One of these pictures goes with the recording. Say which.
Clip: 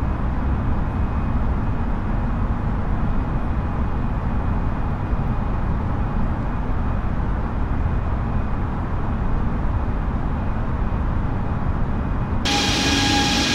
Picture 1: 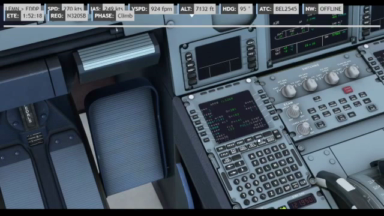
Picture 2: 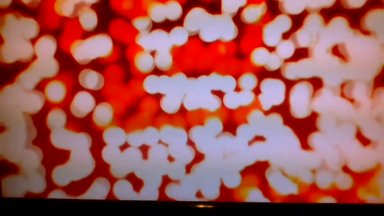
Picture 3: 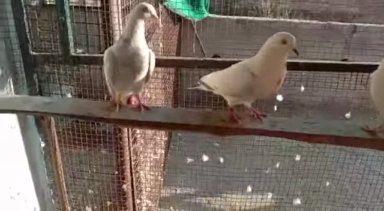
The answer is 1